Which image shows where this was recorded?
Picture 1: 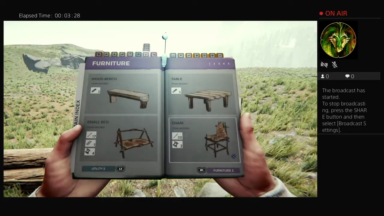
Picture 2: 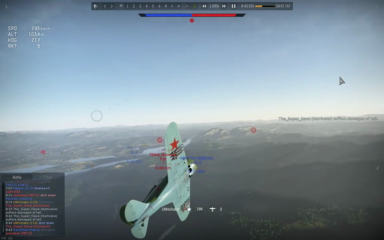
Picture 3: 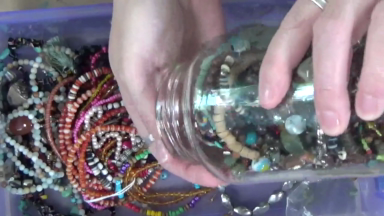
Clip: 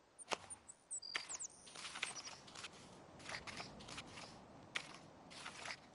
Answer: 1